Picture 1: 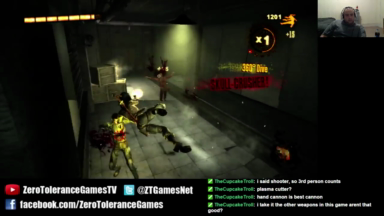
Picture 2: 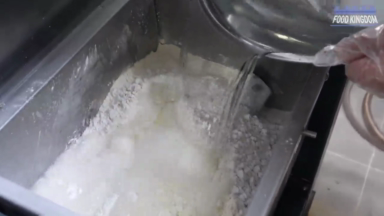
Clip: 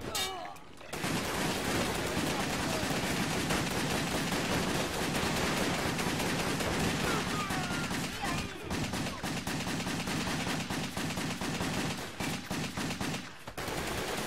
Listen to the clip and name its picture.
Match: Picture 1